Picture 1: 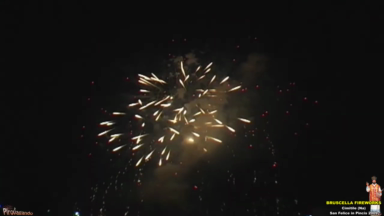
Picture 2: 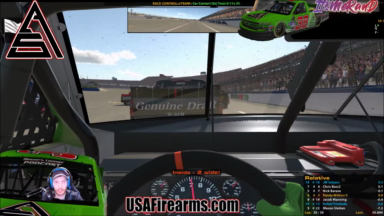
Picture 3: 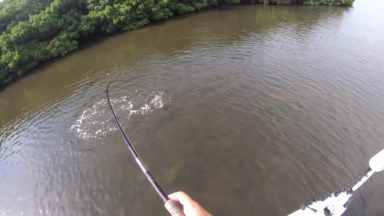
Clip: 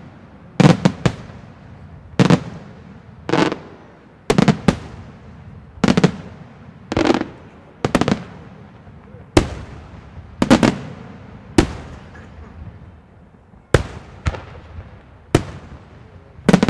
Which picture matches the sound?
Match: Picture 1